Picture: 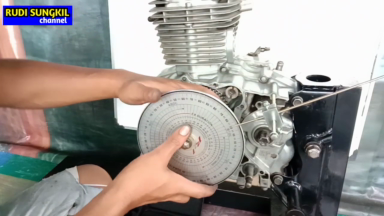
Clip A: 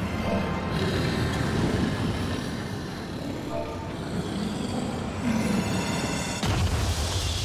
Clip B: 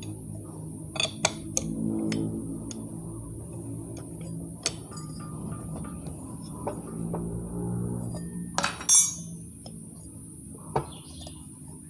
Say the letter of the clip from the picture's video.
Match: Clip B